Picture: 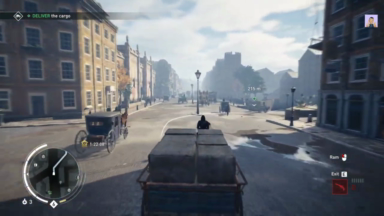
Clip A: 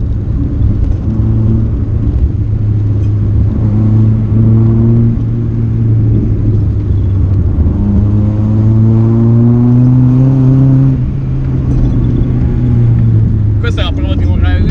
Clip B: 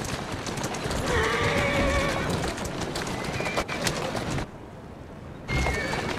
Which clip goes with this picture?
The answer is B